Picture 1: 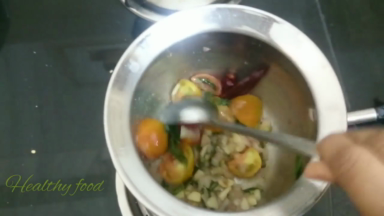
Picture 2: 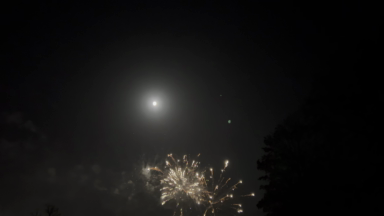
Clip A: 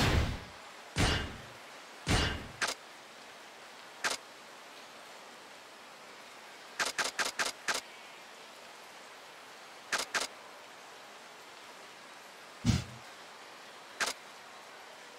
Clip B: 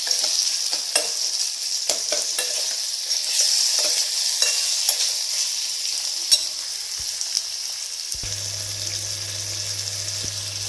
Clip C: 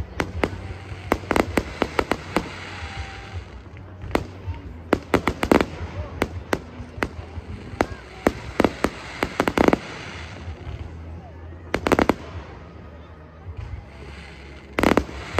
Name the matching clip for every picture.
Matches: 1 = B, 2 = C